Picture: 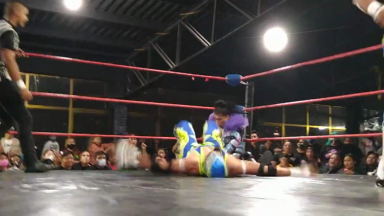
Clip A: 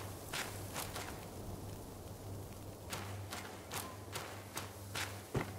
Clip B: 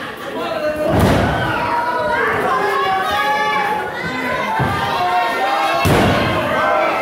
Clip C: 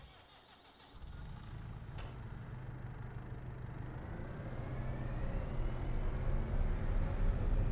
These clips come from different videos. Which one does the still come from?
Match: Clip B